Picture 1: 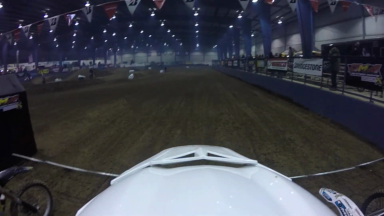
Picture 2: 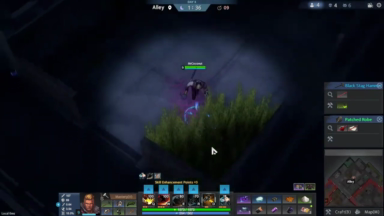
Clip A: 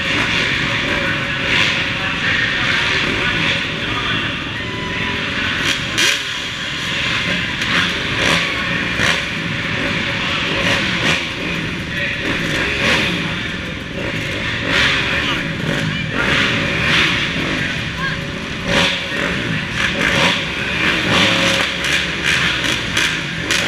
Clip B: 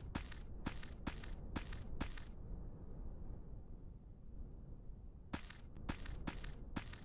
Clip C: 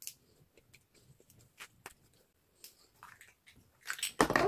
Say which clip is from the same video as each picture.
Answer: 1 A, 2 B